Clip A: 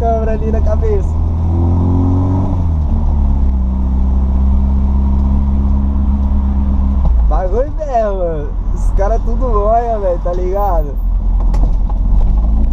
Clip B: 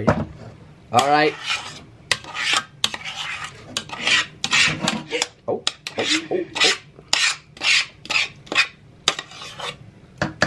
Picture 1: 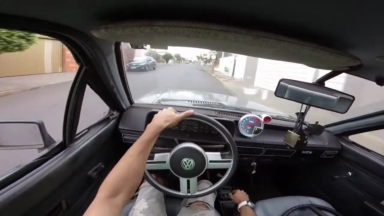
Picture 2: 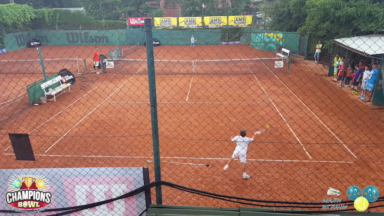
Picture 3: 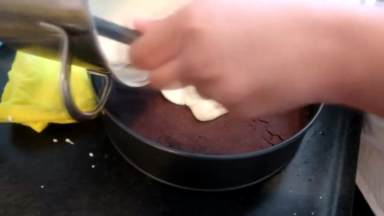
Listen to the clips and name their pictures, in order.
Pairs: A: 1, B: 3